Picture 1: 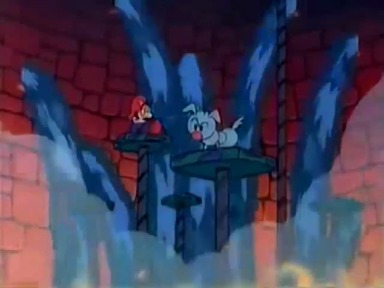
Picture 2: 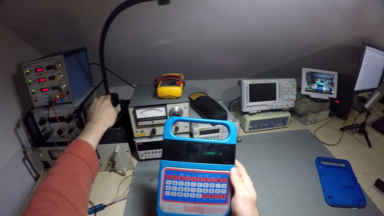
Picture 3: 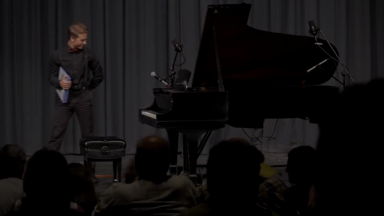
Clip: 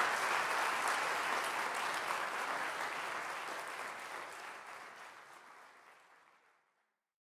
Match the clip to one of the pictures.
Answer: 3